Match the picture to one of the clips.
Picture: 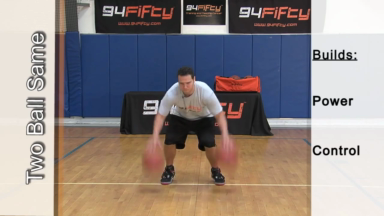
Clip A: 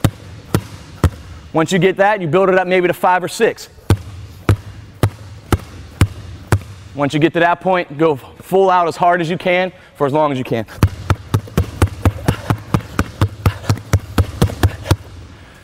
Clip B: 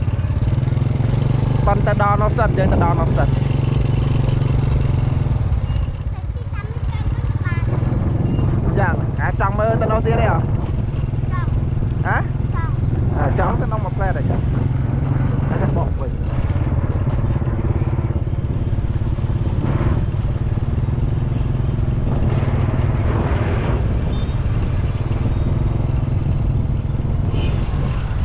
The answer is A